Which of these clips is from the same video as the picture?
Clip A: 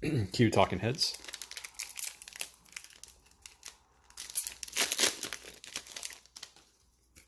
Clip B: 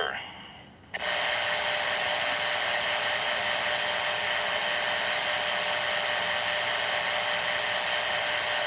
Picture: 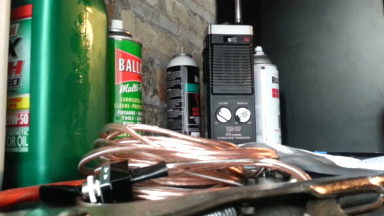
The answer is B